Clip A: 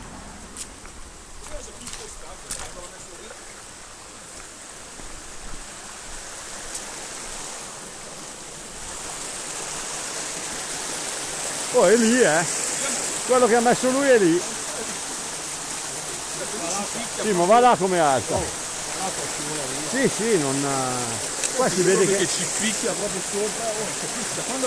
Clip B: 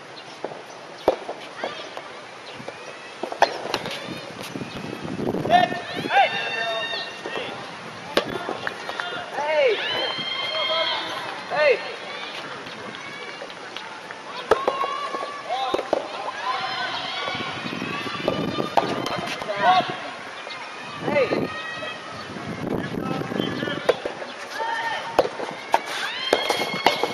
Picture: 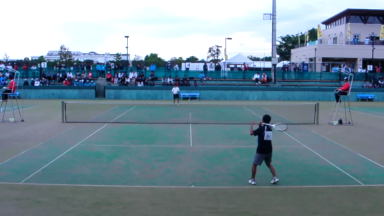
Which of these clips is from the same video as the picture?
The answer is B